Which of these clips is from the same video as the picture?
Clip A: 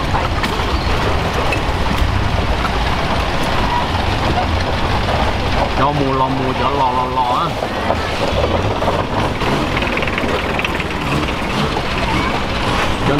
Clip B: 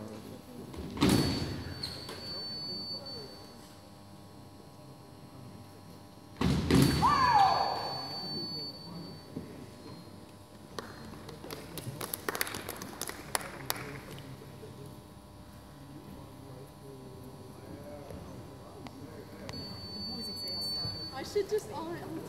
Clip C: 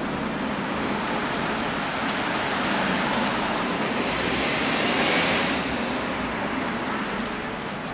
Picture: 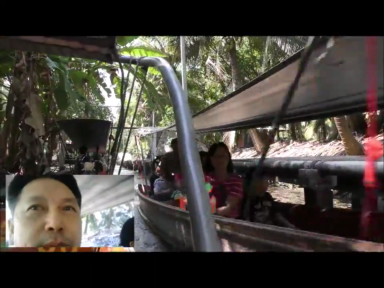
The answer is A